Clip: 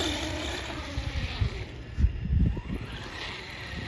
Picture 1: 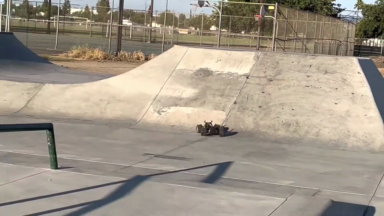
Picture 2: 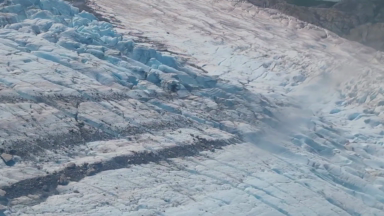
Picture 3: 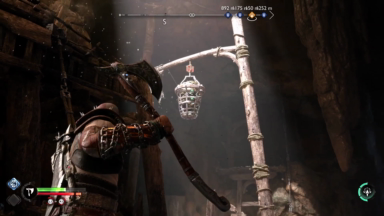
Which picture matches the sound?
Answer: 1